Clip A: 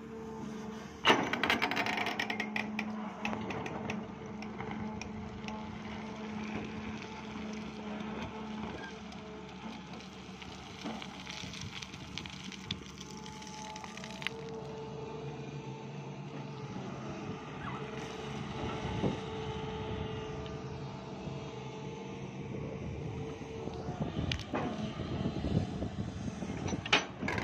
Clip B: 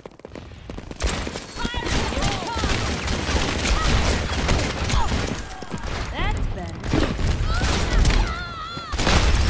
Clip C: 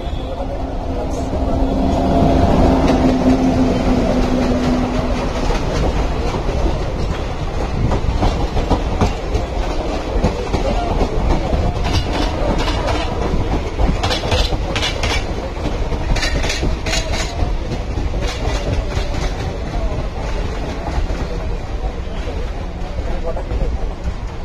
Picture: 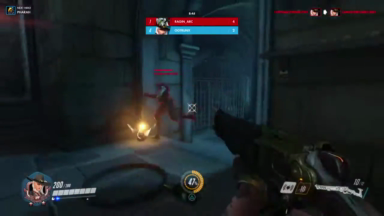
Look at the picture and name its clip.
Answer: B